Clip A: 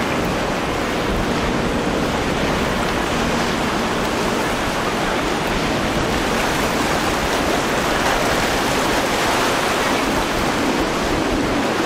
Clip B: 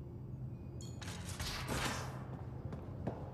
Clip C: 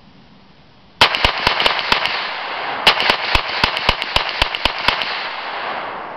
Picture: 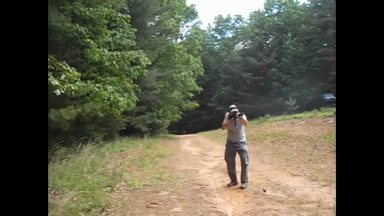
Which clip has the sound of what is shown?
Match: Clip C